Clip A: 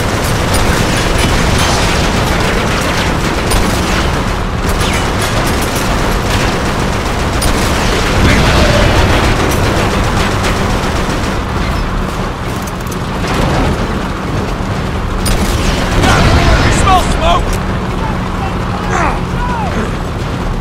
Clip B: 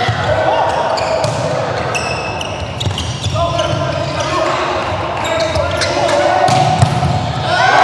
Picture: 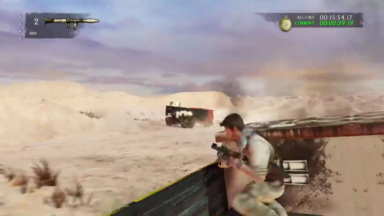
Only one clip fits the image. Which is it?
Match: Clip A